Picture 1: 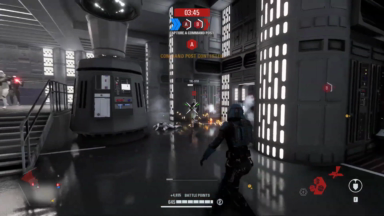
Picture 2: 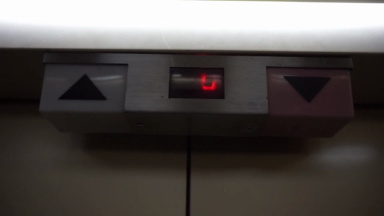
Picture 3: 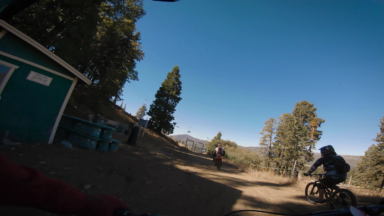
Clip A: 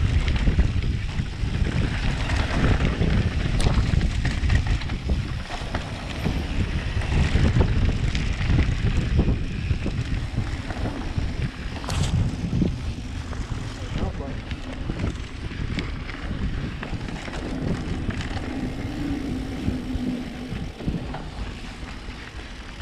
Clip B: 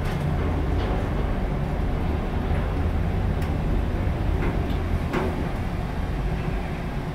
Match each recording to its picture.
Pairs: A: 3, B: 2